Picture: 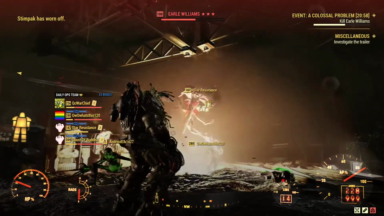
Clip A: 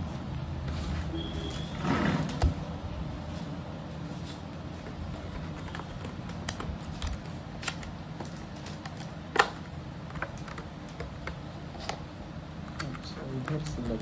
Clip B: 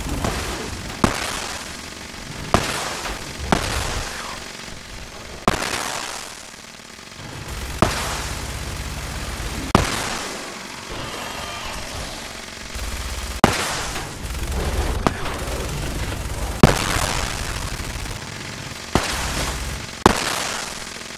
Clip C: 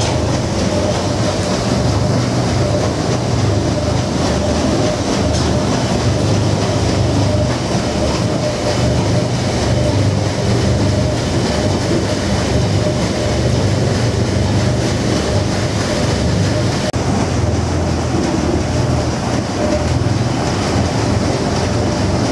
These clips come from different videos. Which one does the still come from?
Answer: B